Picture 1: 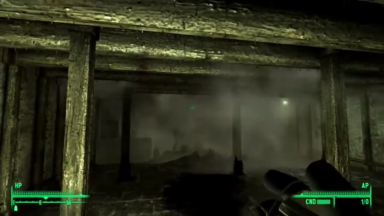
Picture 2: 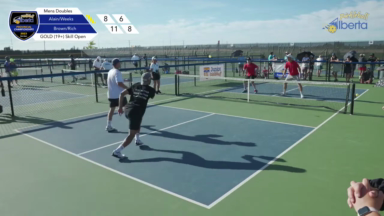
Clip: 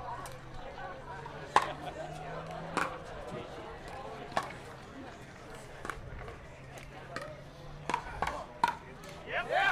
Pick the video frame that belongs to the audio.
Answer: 2